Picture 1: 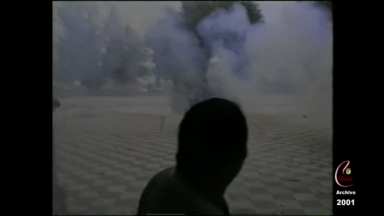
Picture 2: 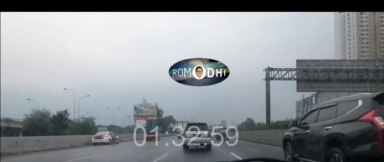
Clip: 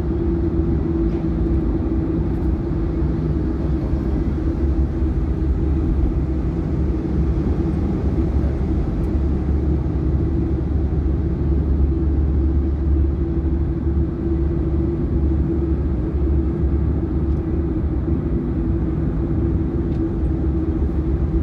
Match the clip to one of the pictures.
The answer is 2